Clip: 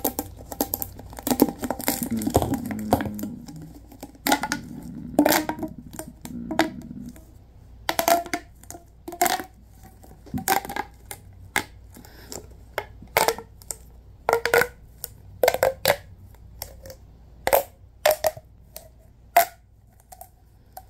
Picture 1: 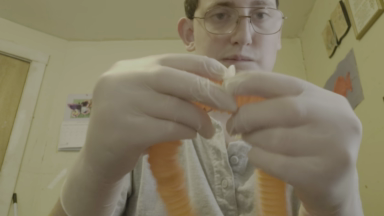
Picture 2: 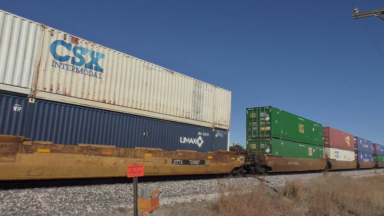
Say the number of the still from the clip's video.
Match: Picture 1